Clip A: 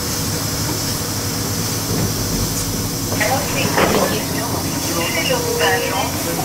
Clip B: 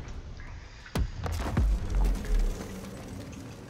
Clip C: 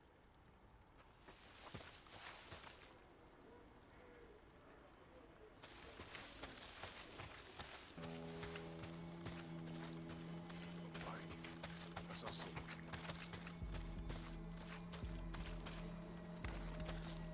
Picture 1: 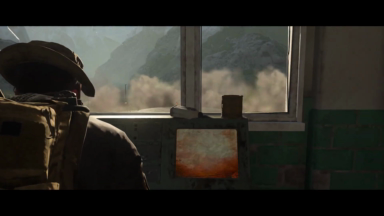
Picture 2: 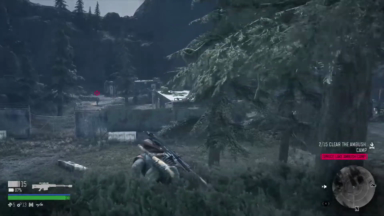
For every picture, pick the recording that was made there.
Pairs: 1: B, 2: C